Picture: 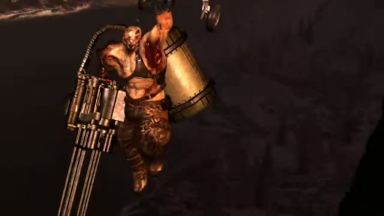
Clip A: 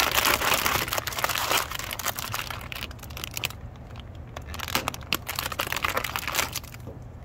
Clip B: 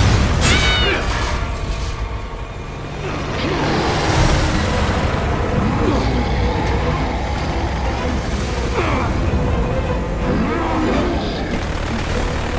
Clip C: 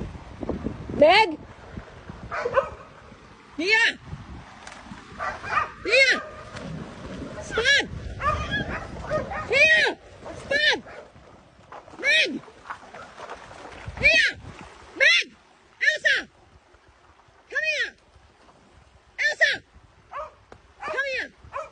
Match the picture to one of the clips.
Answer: B